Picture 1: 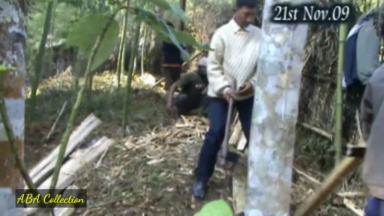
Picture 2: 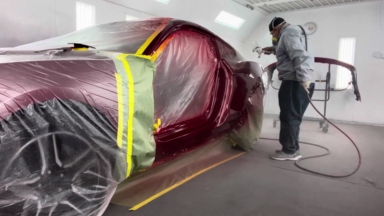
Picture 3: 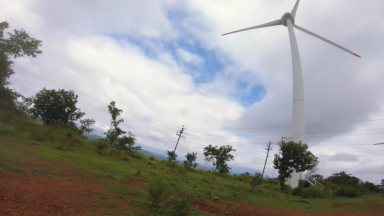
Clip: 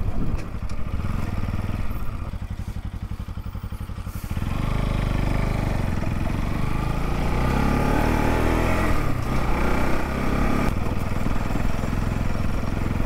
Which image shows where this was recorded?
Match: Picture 3